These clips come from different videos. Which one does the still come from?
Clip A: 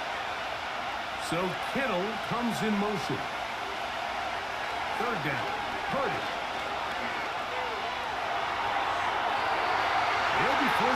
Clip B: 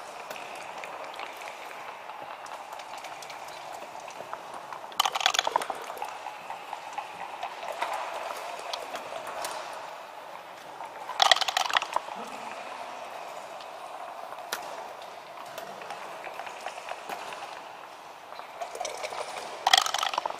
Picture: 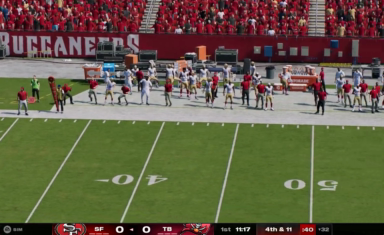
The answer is A